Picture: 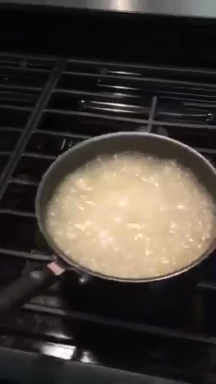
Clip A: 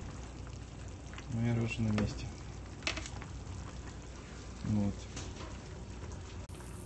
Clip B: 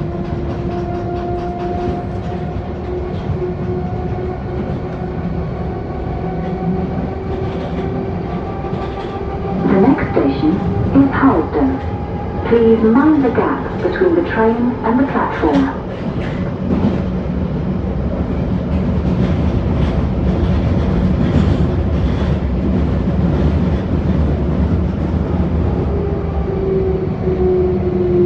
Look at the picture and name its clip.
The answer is A